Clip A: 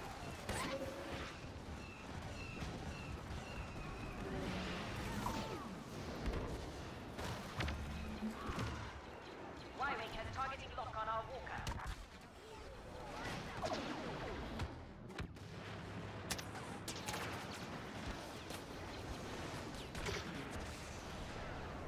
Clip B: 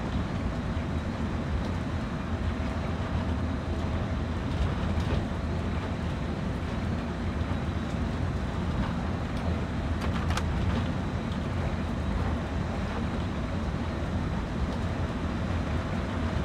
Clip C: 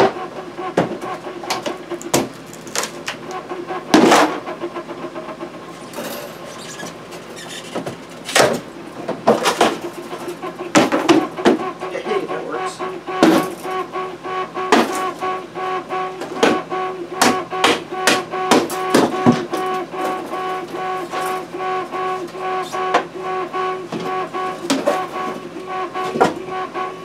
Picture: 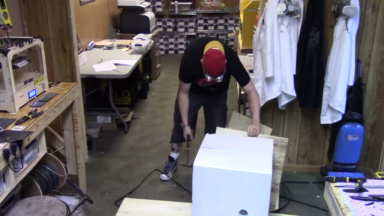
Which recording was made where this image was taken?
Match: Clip C